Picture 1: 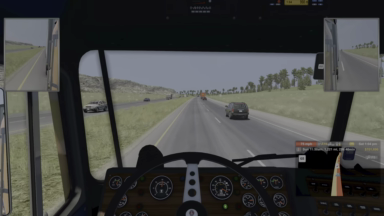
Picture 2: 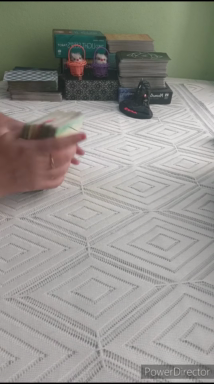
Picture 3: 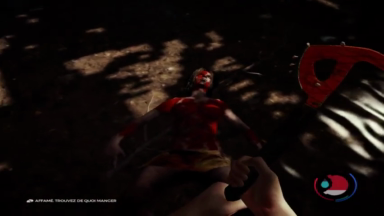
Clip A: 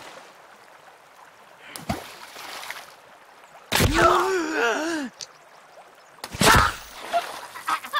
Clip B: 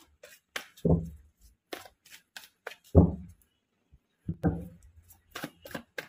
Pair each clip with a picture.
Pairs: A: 3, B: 2